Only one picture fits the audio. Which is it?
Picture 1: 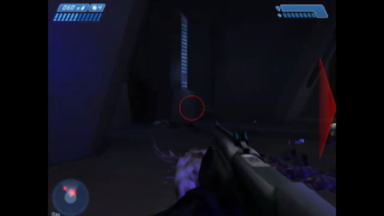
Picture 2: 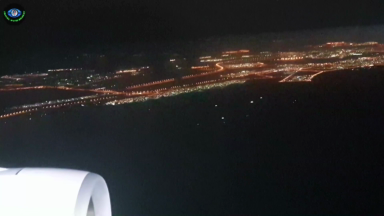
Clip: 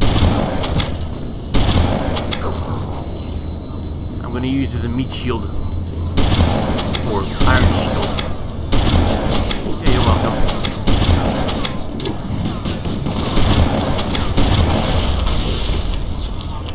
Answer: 1